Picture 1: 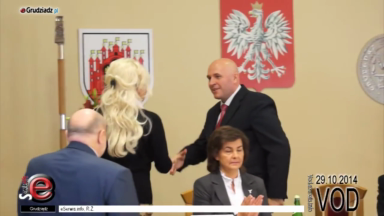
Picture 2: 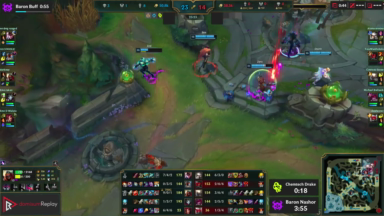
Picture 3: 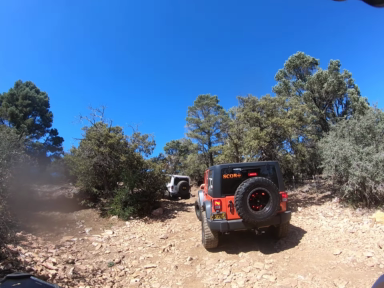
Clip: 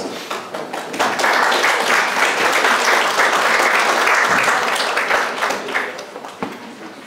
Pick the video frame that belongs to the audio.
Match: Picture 1